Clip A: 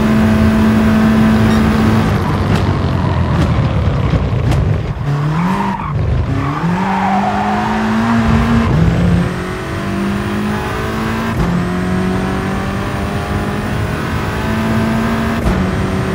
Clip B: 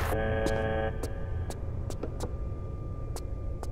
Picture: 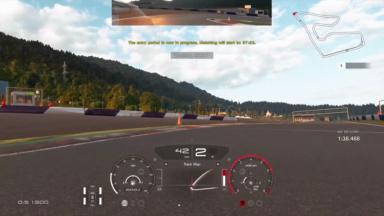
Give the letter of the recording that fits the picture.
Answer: A